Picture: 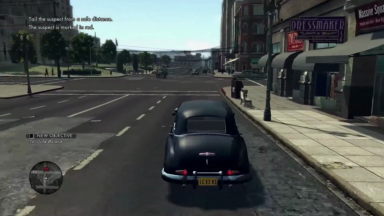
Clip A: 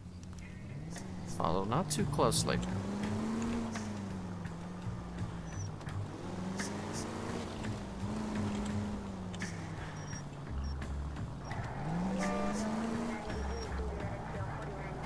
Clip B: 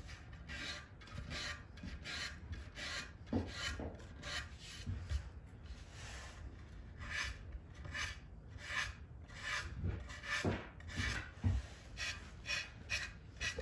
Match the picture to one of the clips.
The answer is A